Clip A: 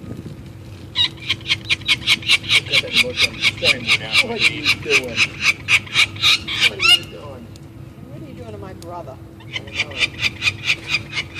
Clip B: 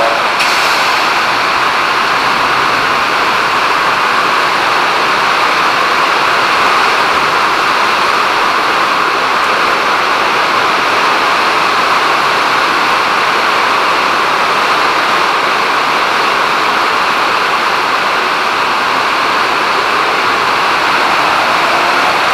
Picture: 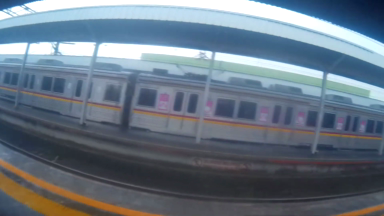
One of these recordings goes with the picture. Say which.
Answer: B